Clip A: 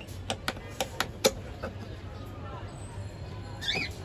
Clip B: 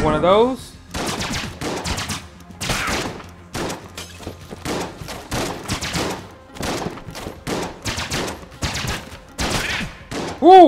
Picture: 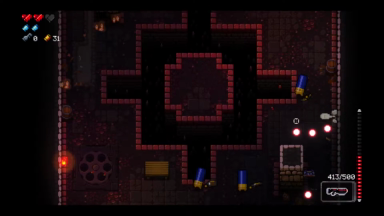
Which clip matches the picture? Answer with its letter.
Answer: B